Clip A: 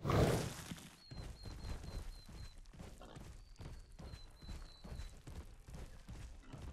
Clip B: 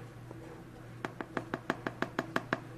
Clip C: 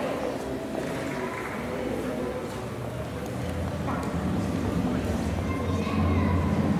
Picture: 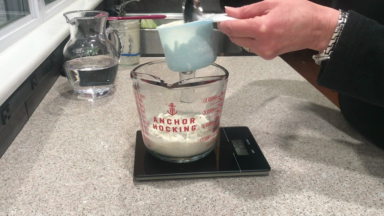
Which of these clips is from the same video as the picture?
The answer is B